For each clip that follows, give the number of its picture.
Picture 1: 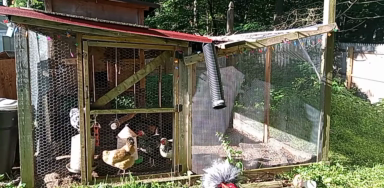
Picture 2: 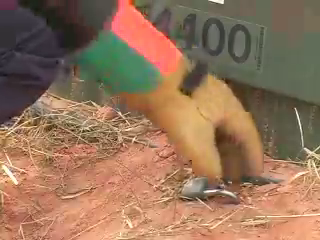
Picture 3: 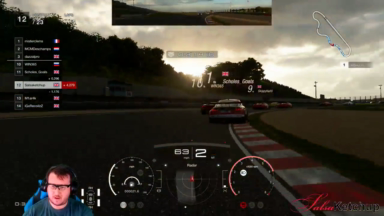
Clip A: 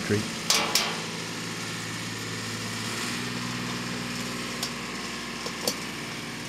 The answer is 2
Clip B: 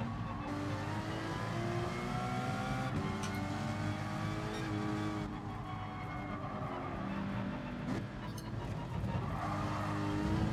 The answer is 3